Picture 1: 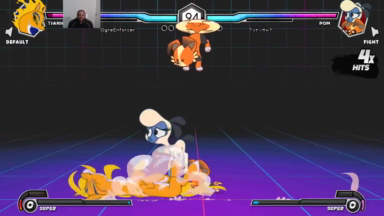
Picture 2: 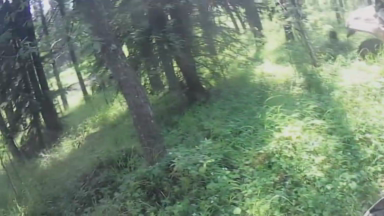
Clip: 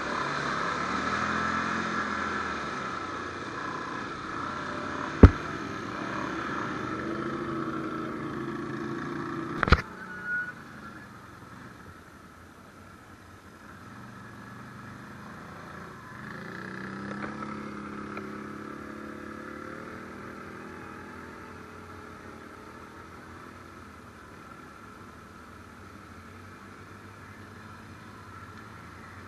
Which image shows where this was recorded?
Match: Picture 2